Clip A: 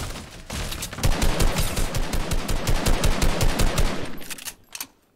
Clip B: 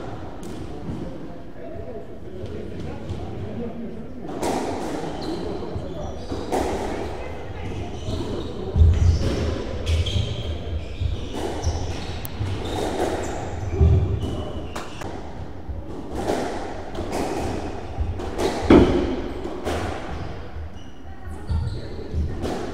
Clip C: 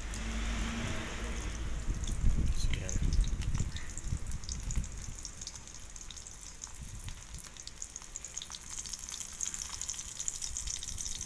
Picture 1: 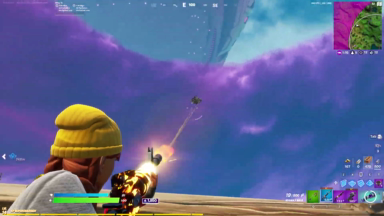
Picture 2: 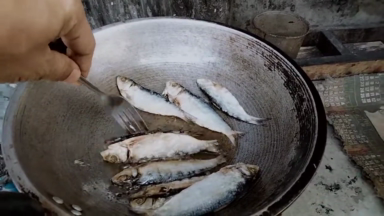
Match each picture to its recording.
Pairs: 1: A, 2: C